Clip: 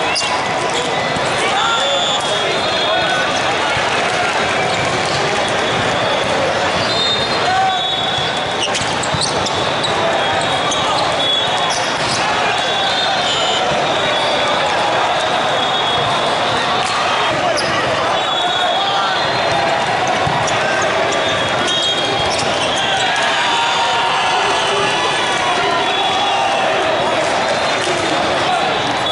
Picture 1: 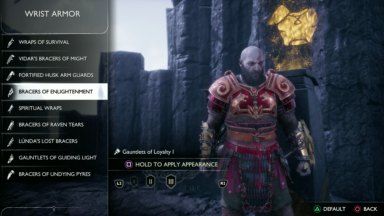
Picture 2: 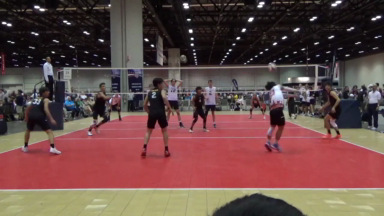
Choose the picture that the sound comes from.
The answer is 2